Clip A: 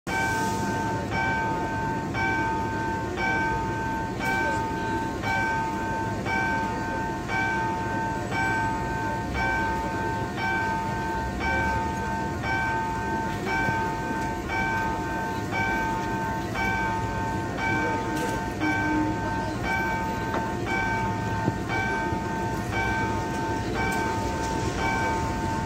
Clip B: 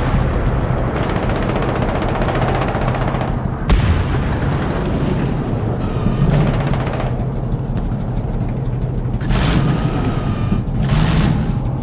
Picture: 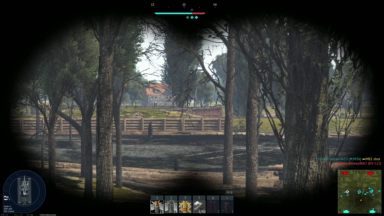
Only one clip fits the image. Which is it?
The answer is B